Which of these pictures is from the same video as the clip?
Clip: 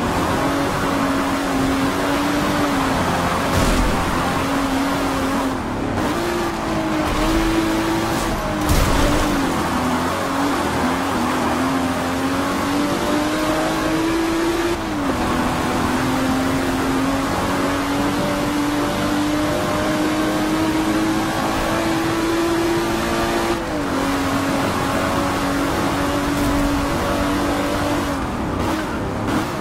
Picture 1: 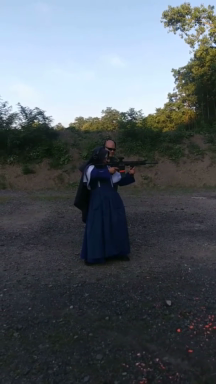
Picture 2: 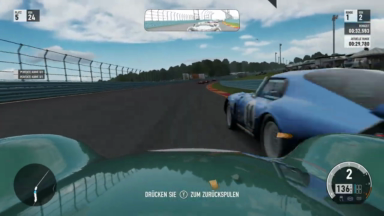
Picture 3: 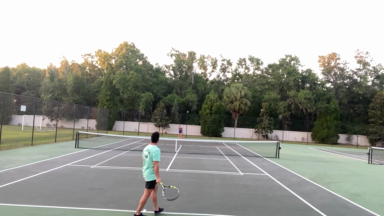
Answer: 2